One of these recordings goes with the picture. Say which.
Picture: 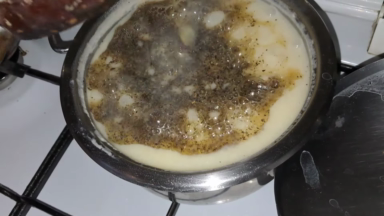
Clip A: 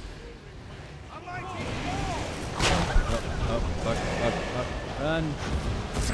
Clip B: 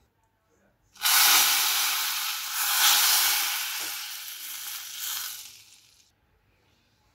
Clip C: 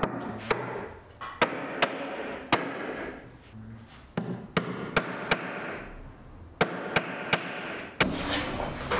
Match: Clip B